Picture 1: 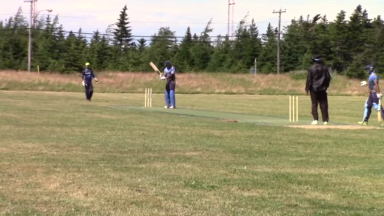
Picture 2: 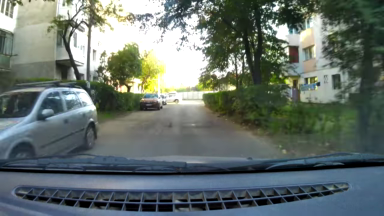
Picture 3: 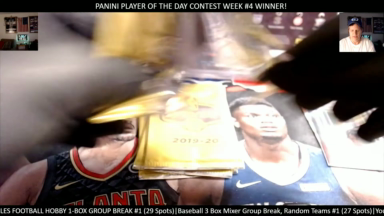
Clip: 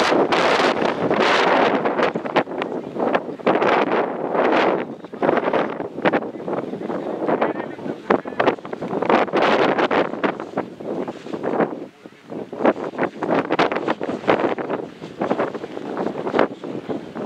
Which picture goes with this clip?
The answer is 1